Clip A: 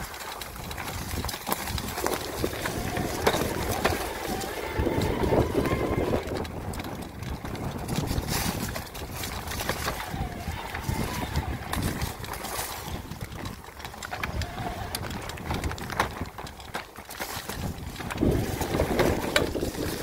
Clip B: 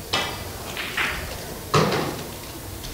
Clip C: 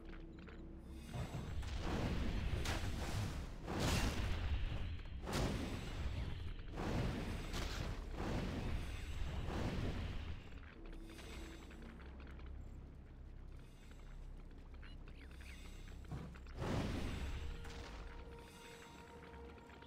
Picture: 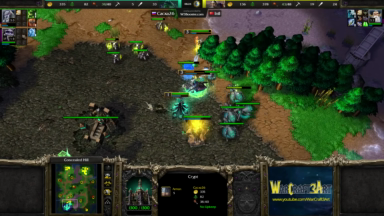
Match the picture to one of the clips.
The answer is C